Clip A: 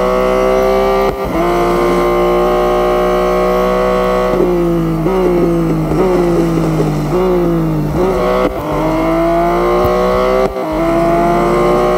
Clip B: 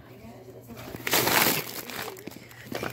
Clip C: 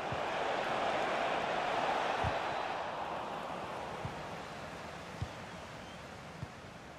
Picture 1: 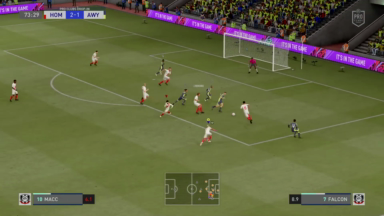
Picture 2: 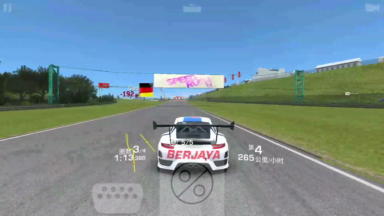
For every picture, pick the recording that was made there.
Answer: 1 C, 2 A